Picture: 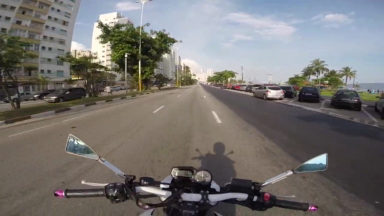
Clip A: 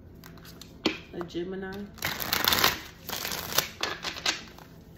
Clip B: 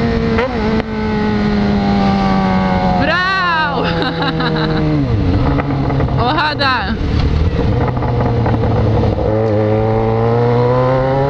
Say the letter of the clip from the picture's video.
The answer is B